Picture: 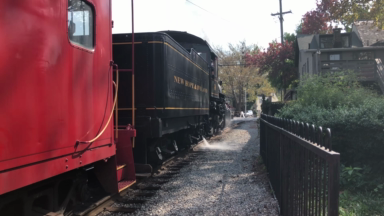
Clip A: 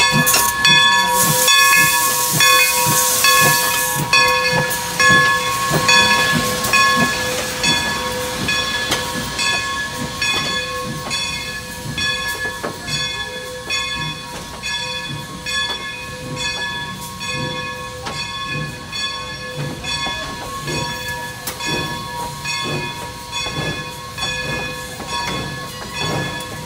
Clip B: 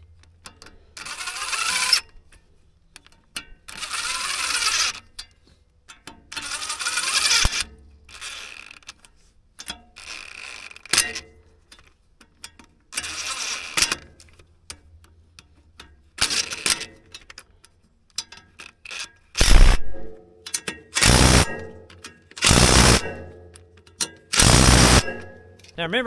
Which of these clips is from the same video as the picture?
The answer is A